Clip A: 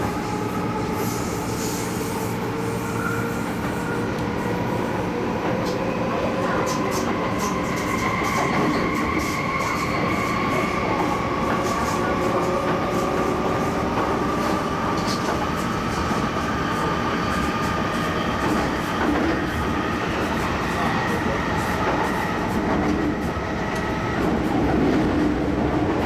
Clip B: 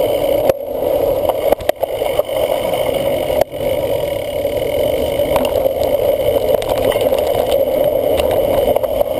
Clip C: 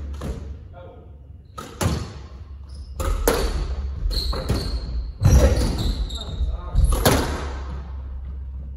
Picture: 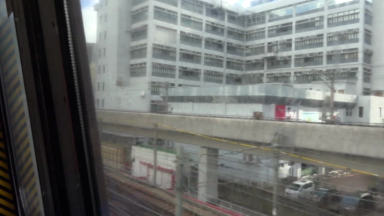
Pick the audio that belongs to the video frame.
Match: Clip A